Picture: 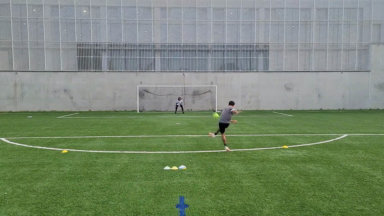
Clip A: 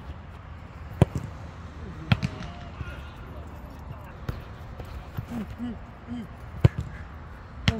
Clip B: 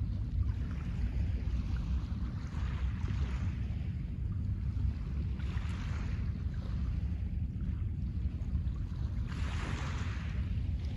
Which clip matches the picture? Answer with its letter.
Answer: A